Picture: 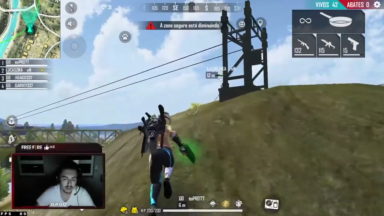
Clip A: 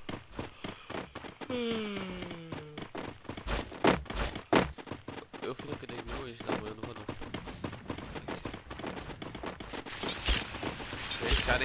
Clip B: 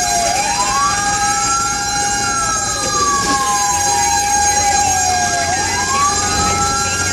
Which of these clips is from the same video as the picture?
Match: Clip A